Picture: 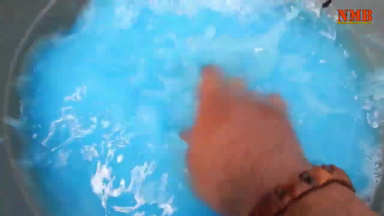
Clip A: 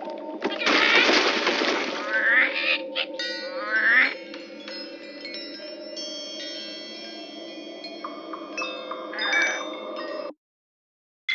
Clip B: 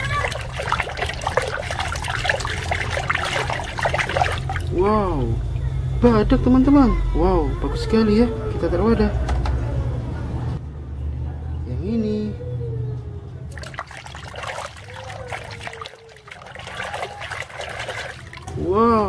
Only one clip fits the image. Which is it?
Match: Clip B